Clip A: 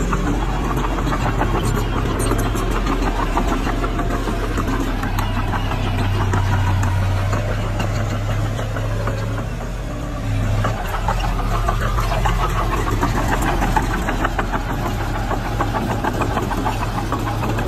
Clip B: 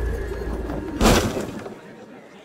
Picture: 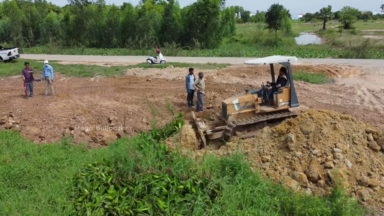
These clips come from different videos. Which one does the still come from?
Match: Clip A